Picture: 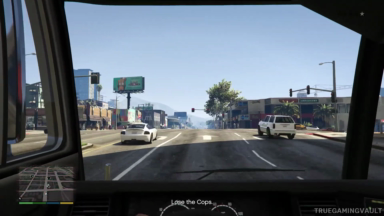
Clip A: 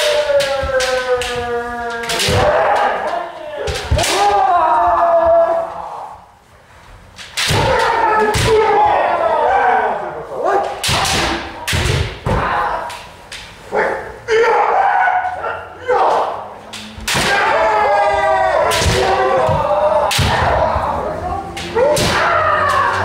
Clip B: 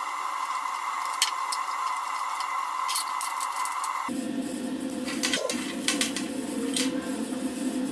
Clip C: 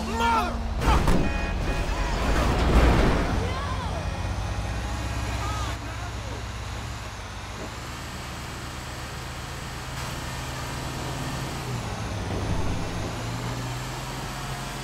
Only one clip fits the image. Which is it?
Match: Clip C